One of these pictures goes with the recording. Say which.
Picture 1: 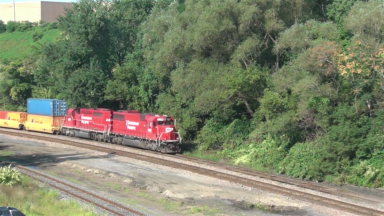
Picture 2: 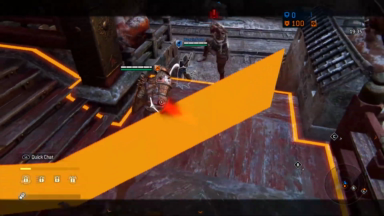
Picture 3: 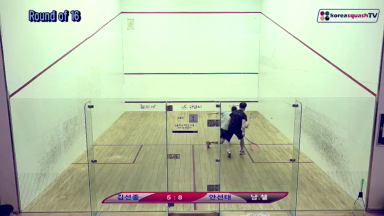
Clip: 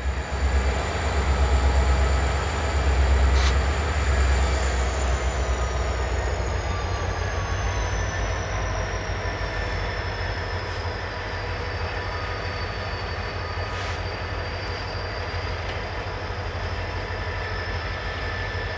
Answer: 1